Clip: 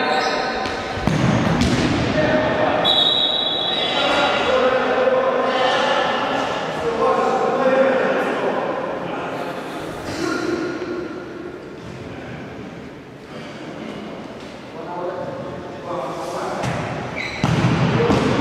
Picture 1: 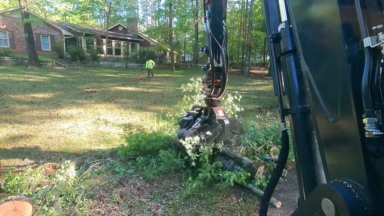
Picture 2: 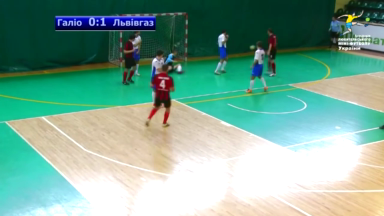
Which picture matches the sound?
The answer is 2